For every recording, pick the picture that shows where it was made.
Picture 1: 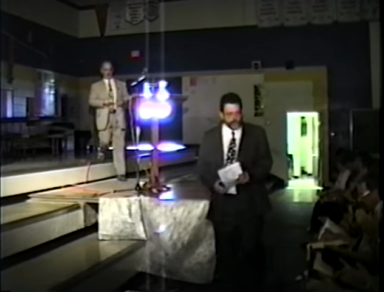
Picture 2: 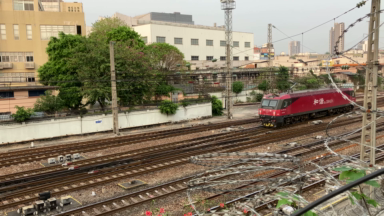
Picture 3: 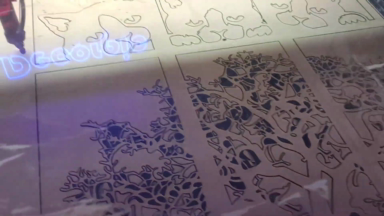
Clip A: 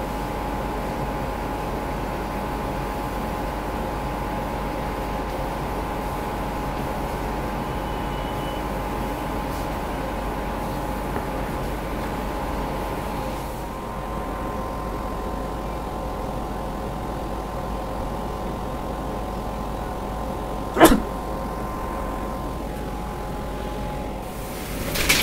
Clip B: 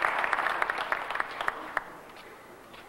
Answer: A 3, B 1